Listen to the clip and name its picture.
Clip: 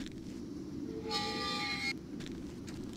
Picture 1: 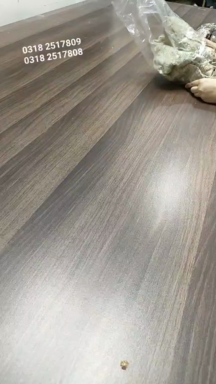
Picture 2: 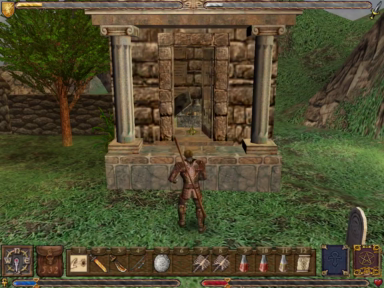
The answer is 2